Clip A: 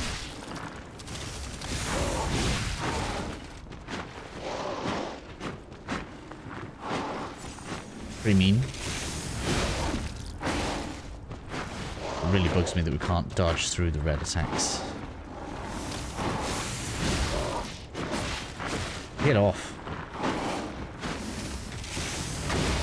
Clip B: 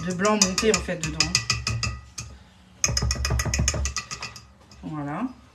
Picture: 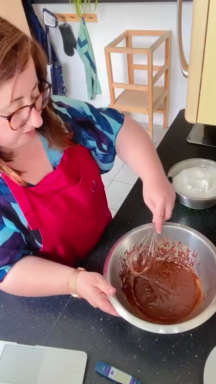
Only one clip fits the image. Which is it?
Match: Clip B